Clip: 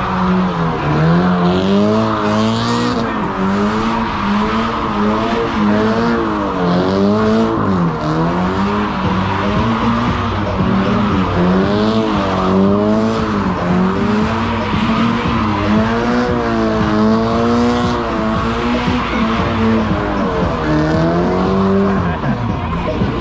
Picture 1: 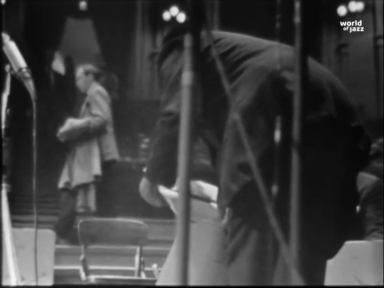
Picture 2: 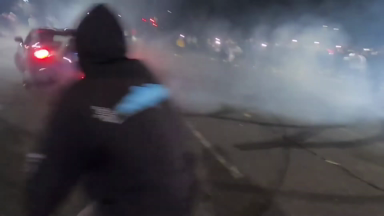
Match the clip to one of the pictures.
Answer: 2